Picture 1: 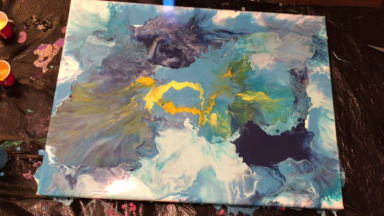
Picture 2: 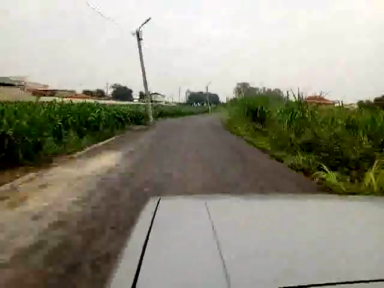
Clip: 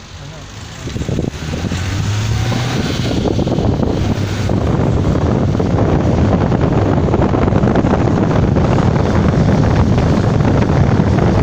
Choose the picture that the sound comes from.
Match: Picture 2